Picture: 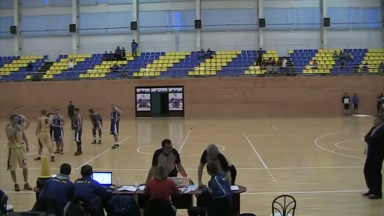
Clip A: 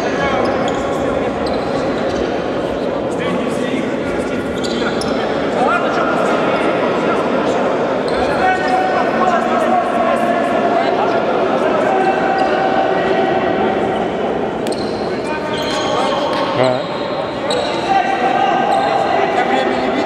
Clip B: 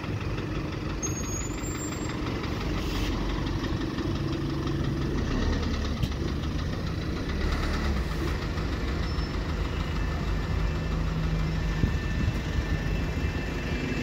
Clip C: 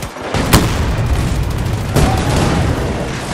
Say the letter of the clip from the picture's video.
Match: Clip A